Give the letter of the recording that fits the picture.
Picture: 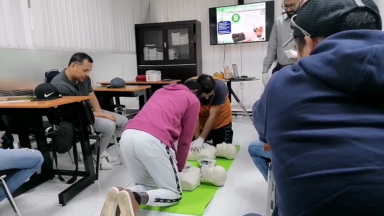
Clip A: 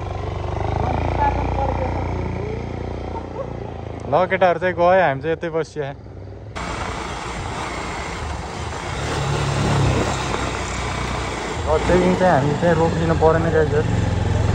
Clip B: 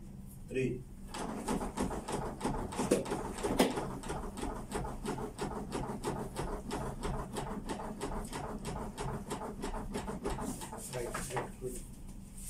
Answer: B